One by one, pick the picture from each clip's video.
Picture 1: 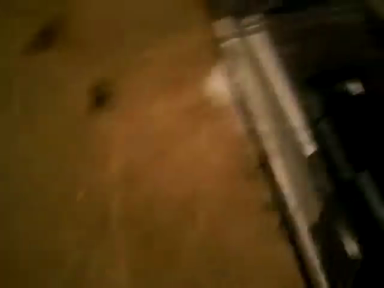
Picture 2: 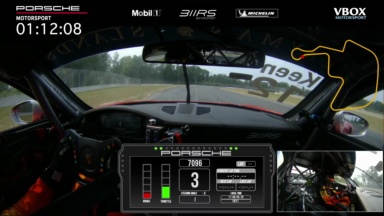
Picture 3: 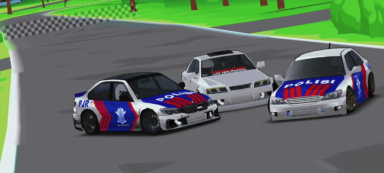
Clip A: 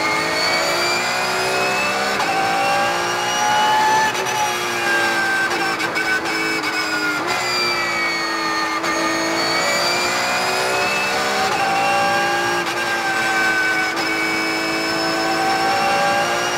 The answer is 2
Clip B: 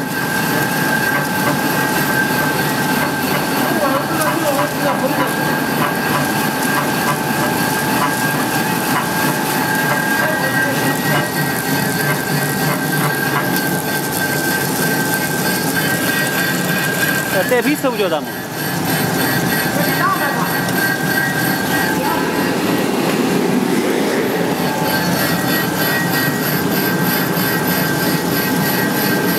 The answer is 1